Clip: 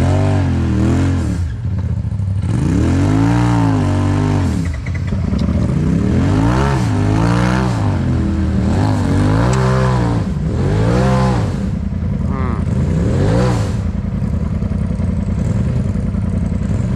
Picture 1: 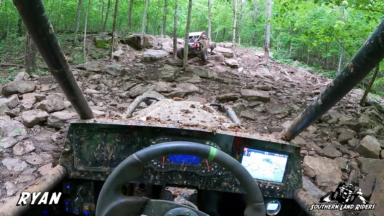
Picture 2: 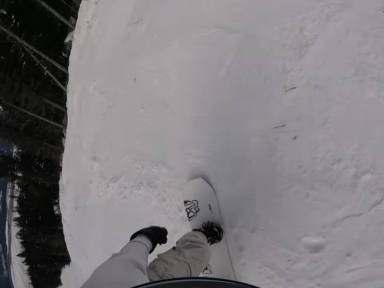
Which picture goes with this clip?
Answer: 1